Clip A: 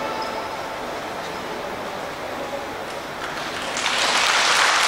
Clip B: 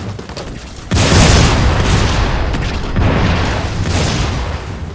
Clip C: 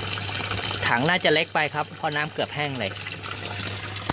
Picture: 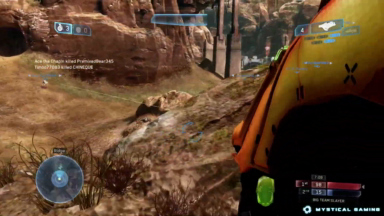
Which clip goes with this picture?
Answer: B